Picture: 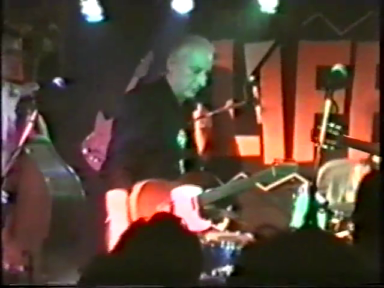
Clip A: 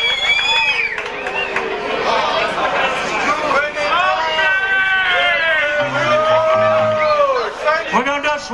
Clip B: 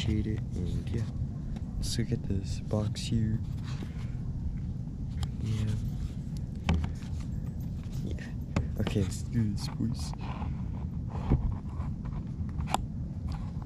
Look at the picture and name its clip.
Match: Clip A